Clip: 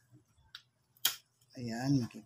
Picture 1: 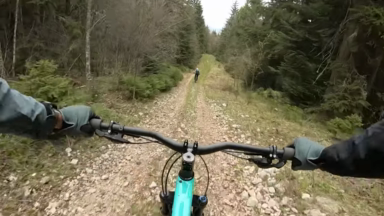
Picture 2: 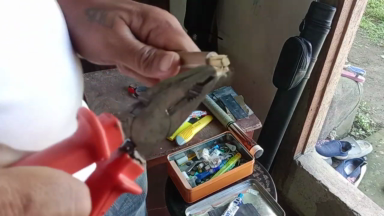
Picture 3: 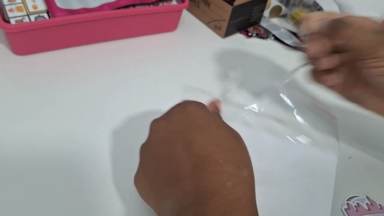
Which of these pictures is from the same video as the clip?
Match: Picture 2